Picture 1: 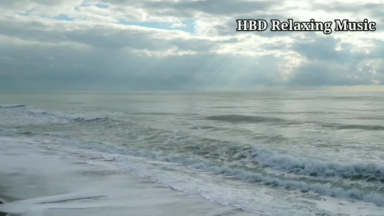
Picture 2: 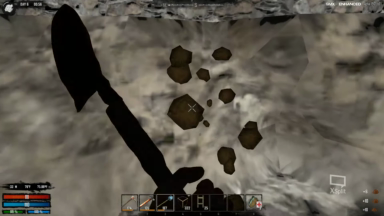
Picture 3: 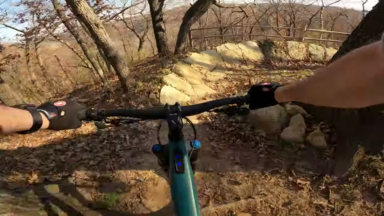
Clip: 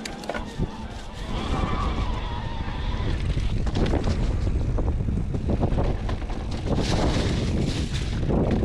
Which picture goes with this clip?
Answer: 3